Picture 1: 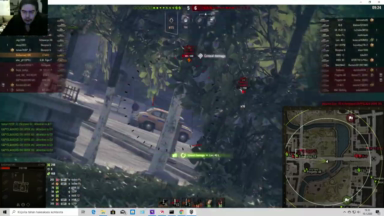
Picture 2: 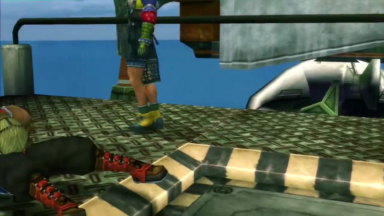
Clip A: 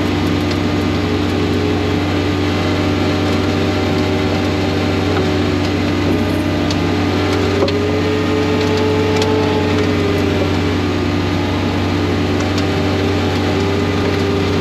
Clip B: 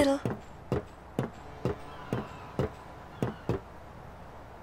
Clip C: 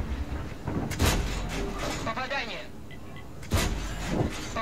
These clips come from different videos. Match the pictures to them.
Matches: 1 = C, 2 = B